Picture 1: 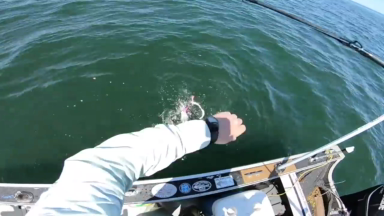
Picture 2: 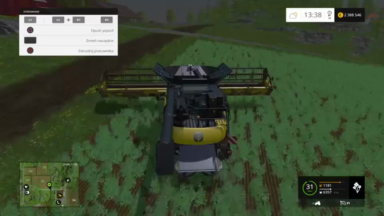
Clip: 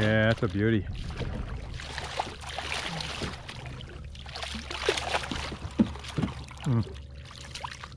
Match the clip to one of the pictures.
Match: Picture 1